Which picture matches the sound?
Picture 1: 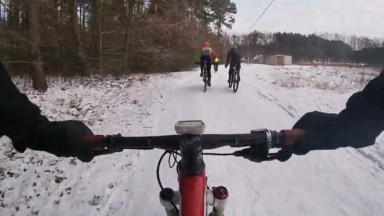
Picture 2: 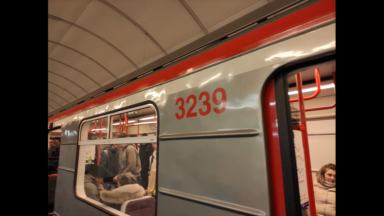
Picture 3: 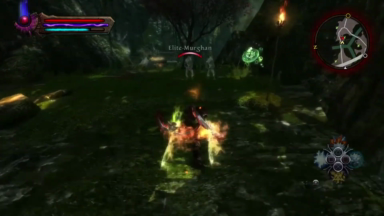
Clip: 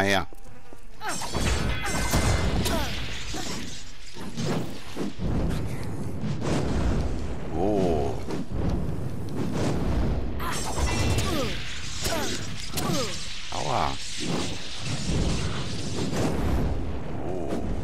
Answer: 3